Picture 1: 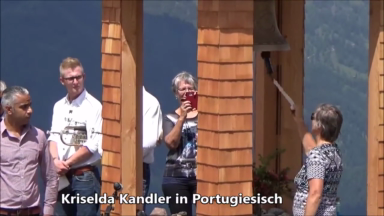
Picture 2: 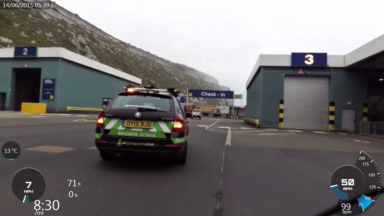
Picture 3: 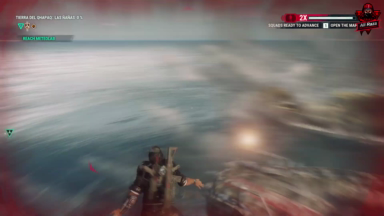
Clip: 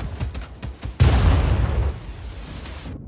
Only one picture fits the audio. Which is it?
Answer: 3